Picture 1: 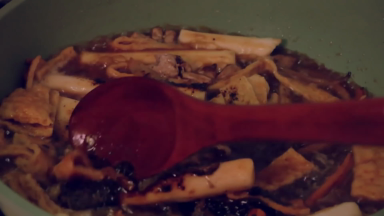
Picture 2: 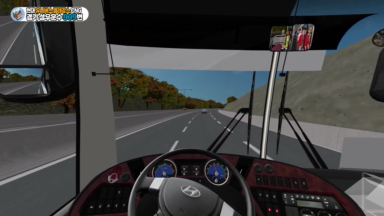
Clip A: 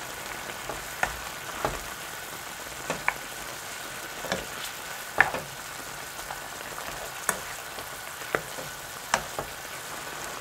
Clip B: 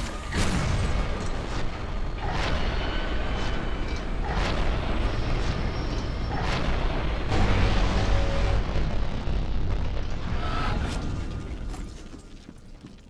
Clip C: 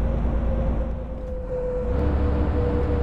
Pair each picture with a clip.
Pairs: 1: A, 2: C